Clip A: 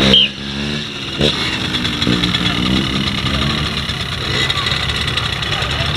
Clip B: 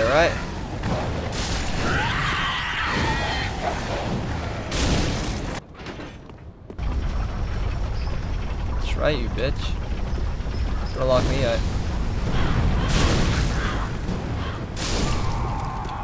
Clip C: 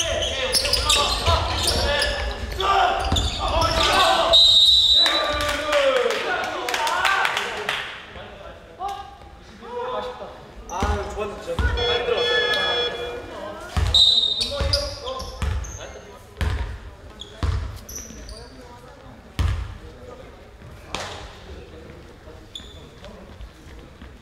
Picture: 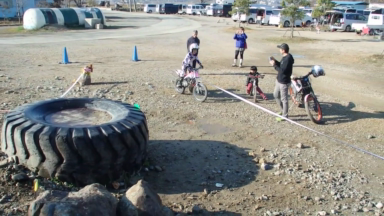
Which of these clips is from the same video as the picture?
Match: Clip A